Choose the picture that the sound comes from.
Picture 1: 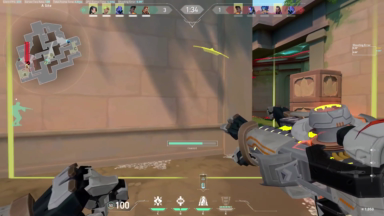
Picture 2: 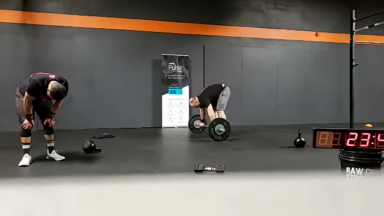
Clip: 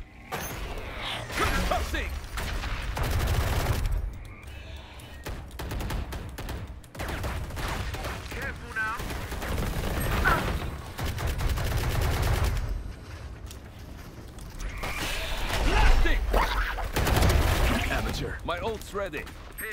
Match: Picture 1